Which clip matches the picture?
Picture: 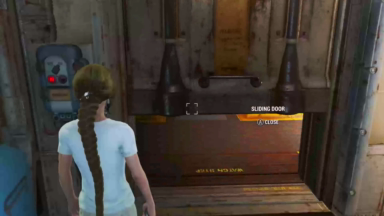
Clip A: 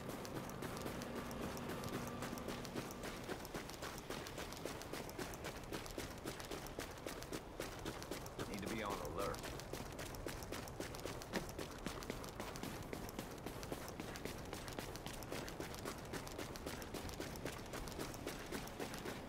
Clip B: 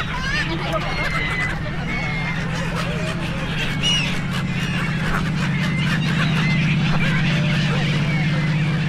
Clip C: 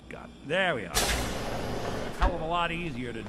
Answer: C